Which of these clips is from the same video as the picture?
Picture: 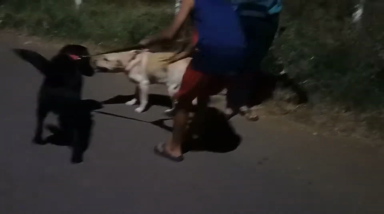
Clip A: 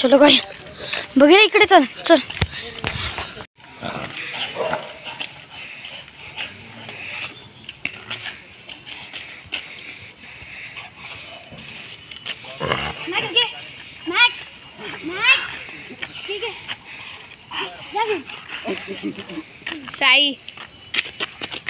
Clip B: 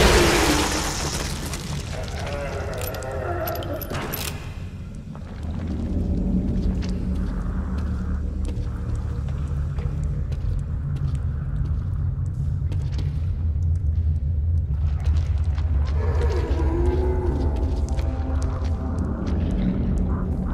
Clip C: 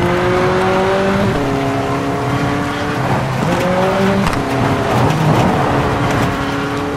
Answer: A